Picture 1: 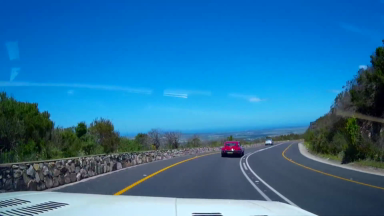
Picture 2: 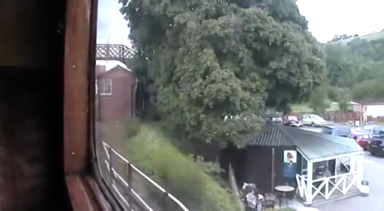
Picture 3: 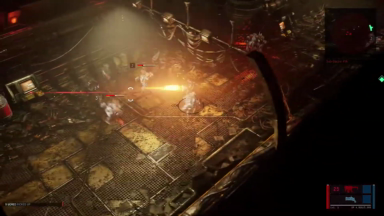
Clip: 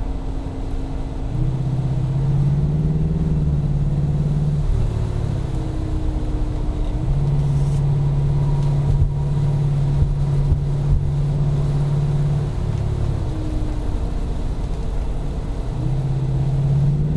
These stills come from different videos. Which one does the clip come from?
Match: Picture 1